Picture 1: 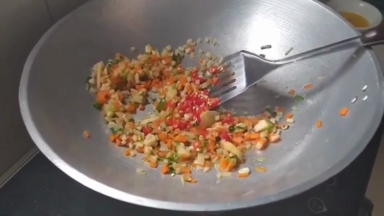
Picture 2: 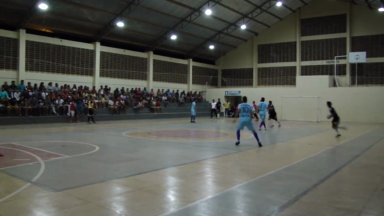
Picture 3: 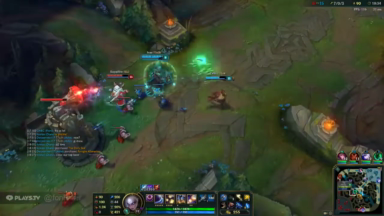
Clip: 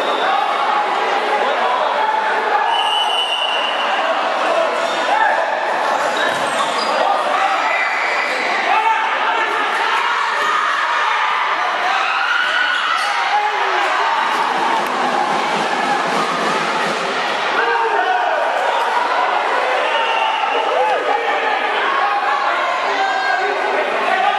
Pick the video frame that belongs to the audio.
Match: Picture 2